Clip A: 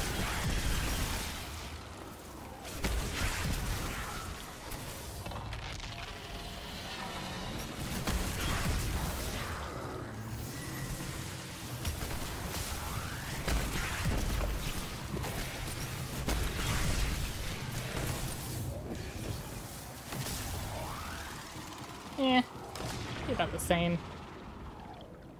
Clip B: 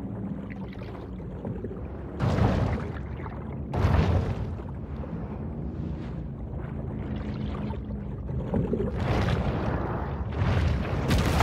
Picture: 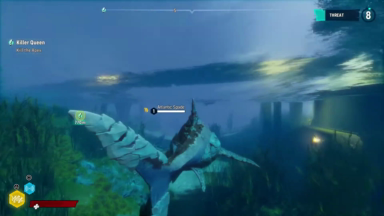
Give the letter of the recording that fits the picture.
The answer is B